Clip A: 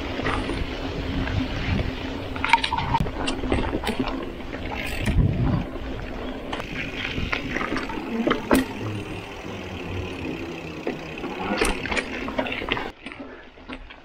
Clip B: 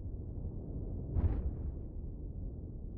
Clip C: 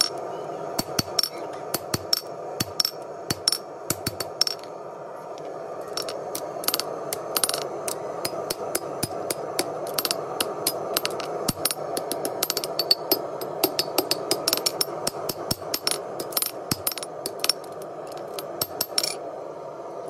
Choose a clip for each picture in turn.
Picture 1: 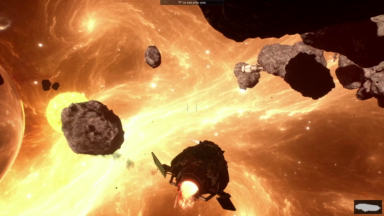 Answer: B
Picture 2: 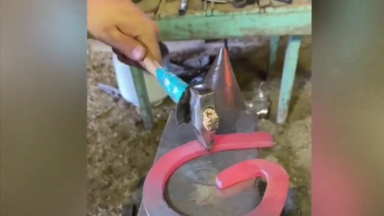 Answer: C